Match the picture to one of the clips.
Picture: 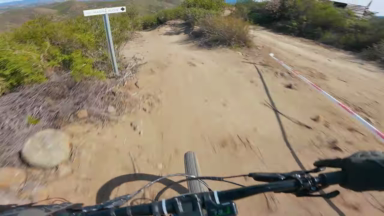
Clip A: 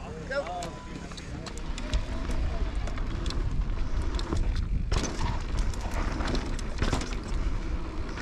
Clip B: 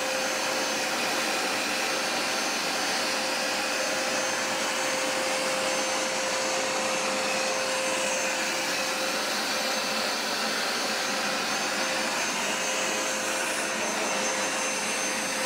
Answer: A